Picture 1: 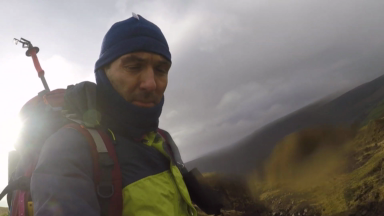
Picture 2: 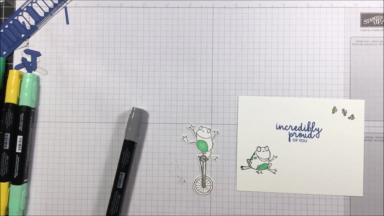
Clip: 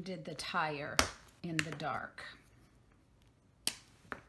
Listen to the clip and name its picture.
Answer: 2